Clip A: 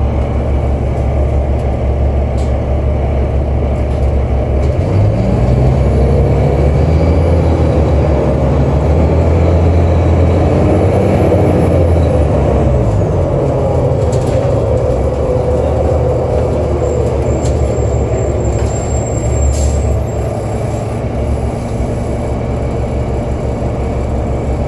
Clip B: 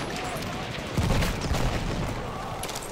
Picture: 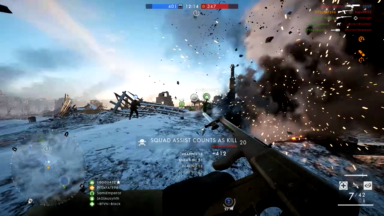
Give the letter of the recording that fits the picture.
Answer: B